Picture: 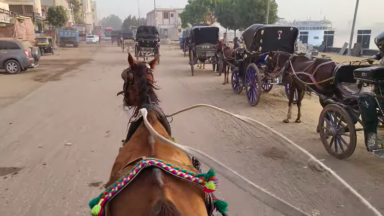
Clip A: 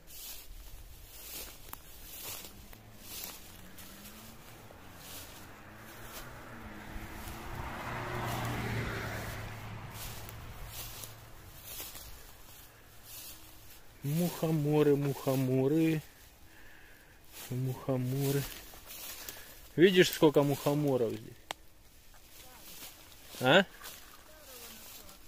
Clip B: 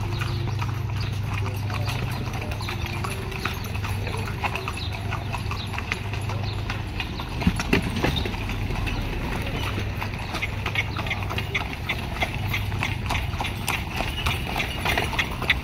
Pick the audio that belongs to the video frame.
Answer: B